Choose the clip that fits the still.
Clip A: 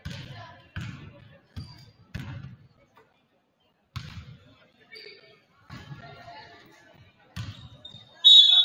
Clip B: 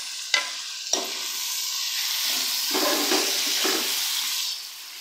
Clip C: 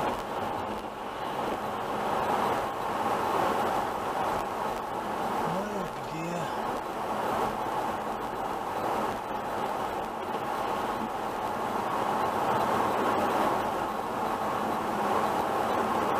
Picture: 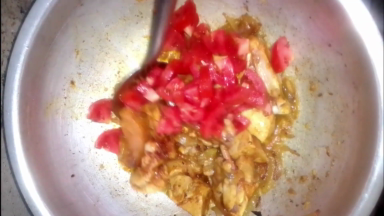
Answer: B